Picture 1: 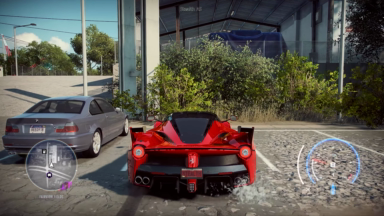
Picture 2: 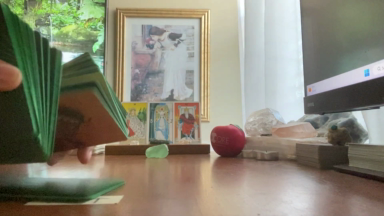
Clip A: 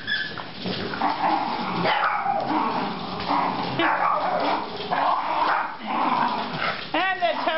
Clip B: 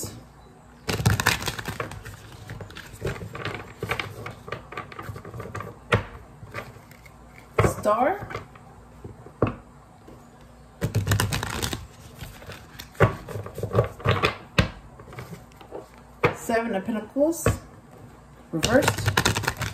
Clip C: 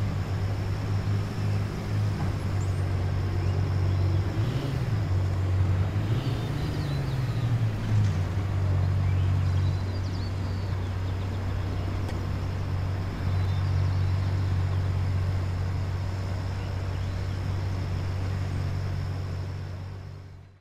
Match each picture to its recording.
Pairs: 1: C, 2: B